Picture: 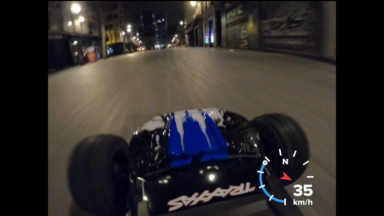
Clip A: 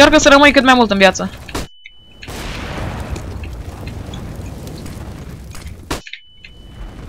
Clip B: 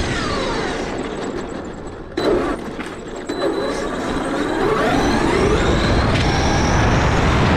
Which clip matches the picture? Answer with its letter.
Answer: B